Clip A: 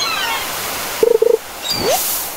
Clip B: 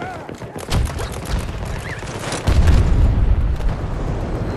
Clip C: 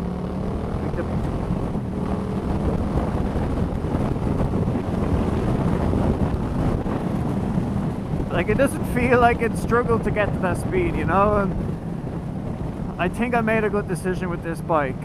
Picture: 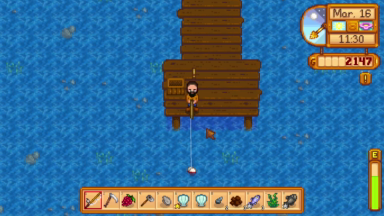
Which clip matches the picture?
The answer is A